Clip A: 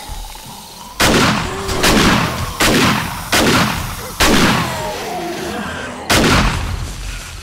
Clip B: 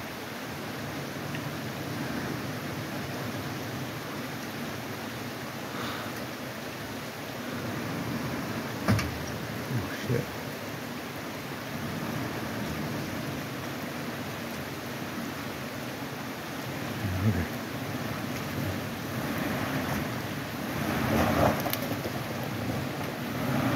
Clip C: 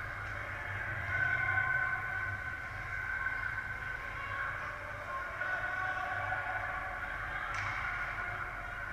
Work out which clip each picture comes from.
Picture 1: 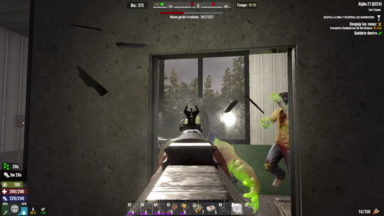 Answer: A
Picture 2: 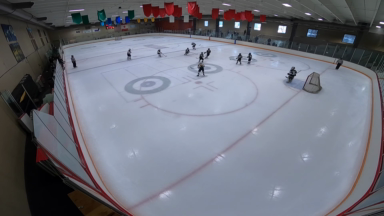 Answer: C